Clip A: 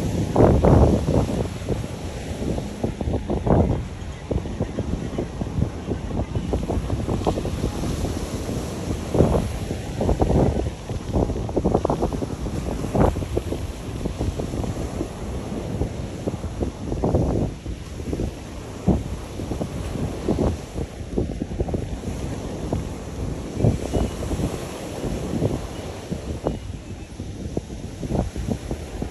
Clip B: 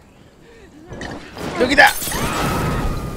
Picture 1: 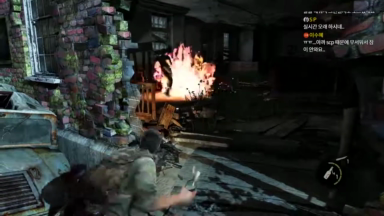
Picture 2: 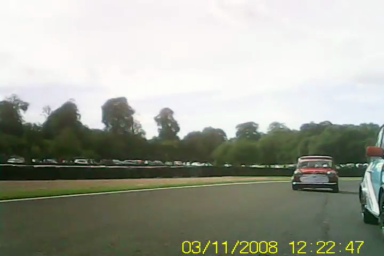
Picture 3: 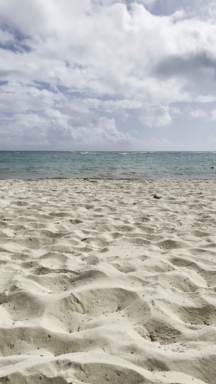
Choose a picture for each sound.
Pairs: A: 3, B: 1